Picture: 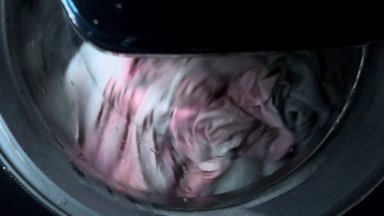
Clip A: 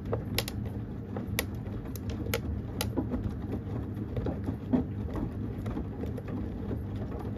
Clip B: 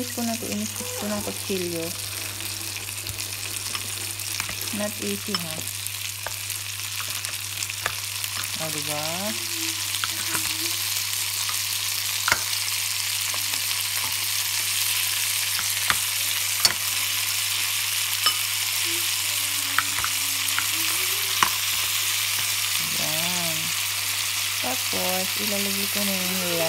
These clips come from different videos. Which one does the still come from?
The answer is A